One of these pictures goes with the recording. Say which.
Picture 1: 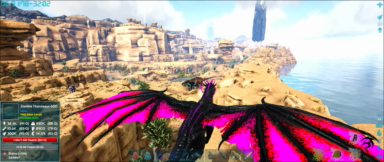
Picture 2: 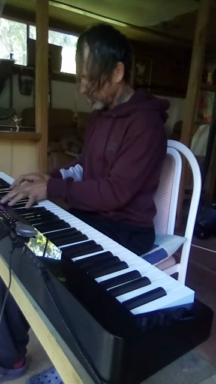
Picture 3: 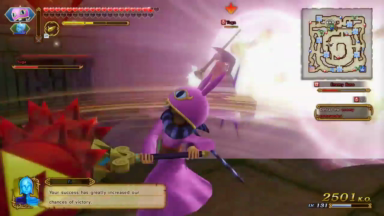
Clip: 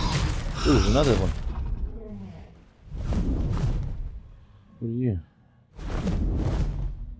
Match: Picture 1